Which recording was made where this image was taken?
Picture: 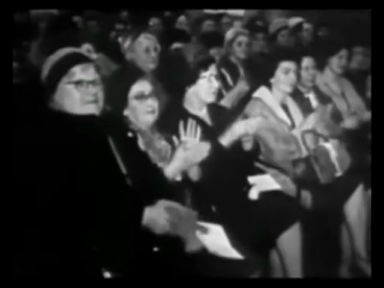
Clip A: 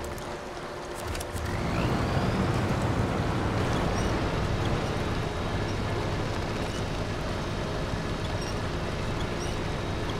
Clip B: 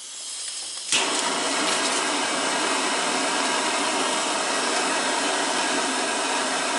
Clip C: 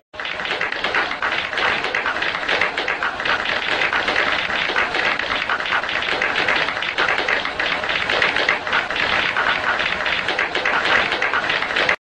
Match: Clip C